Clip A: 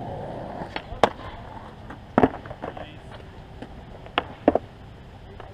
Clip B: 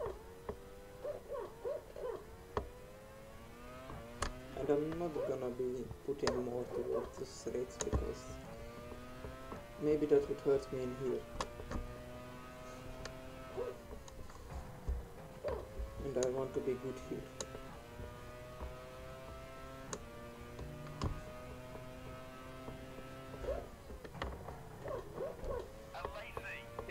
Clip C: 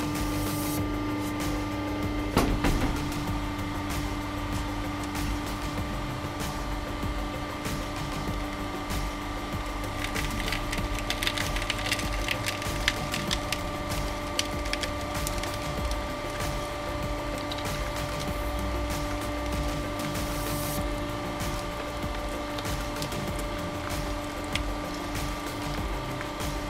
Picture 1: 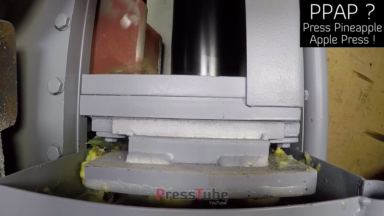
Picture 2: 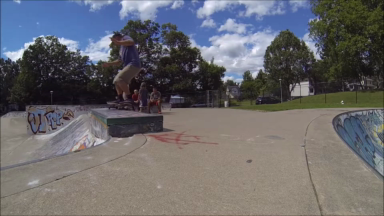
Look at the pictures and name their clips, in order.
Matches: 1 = C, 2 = A